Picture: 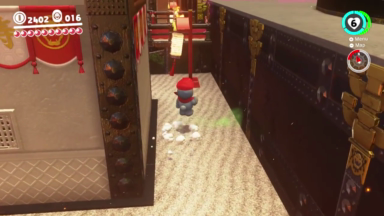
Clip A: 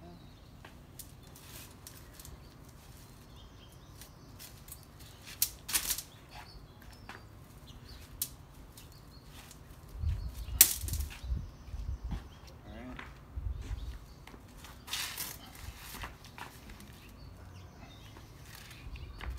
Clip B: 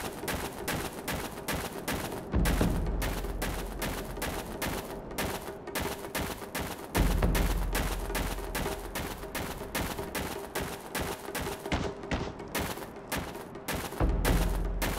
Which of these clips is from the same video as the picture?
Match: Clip B